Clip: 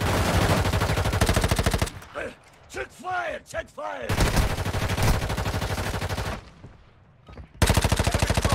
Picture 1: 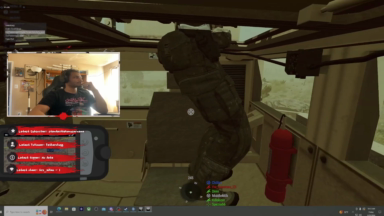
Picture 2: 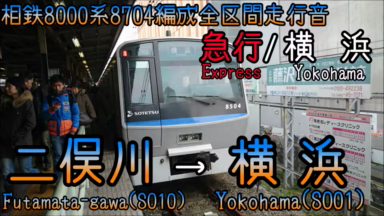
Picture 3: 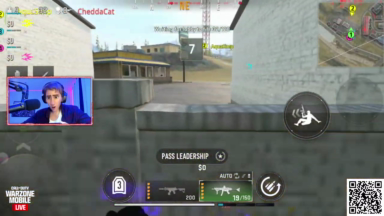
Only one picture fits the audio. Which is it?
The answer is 3